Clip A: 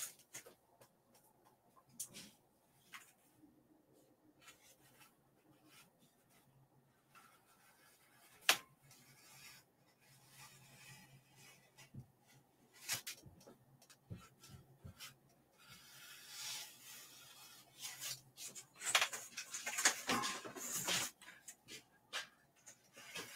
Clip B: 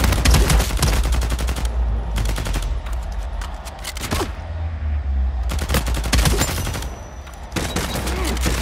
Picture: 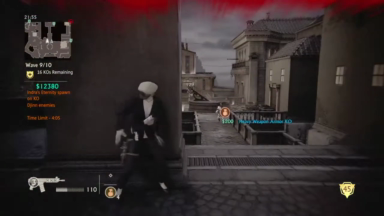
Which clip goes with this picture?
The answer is B